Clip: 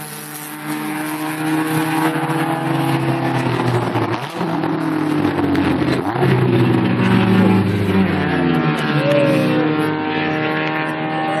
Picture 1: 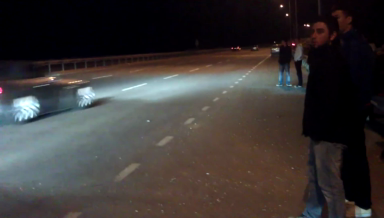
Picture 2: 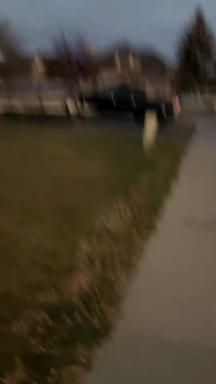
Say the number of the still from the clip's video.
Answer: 1